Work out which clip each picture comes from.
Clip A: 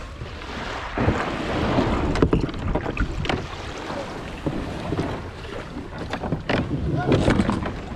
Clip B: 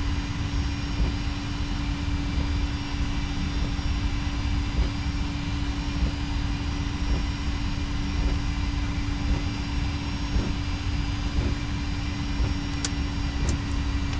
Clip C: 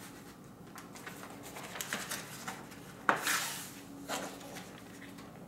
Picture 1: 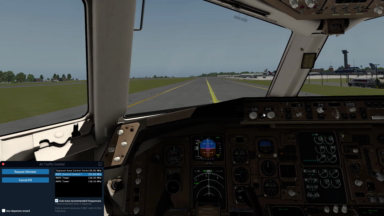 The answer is B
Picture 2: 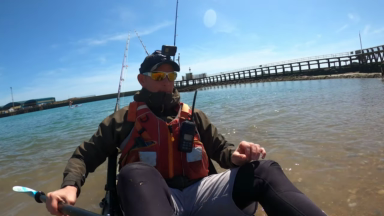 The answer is A